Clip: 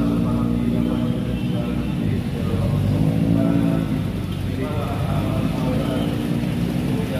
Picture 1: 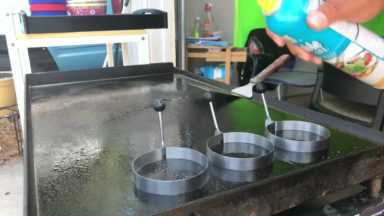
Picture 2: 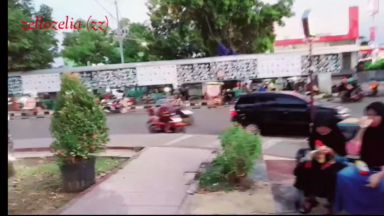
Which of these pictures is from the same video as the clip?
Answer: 2